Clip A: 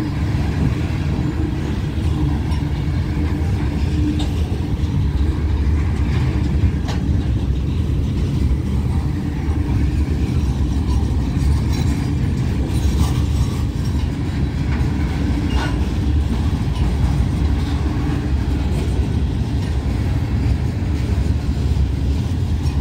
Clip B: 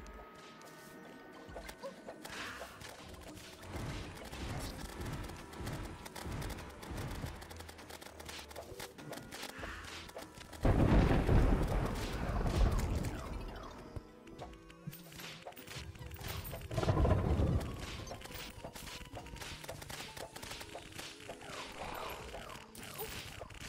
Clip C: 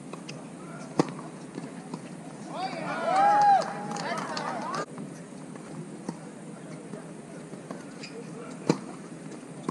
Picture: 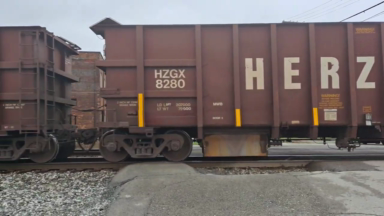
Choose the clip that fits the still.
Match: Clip A